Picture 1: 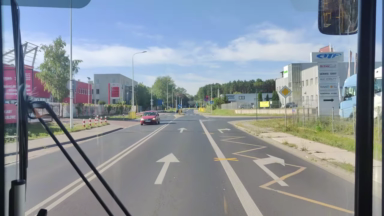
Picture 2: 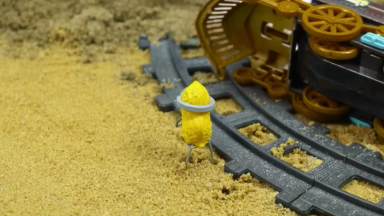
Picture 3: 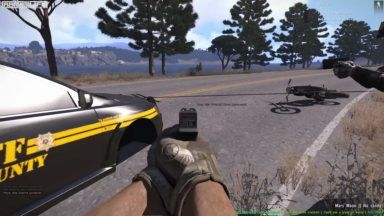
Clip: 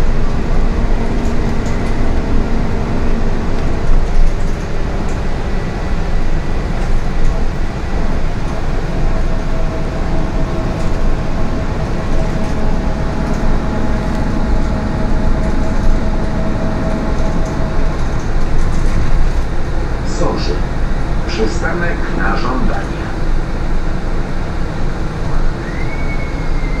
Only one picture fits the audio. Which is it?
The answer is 1